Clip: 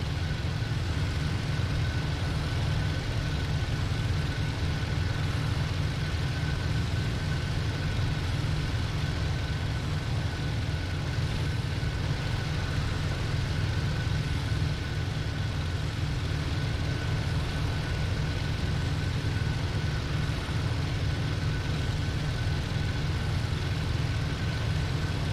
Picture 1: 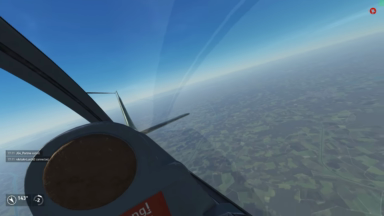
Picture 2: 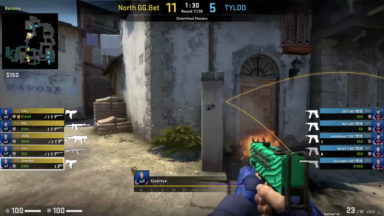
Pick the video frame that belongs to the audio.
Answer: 1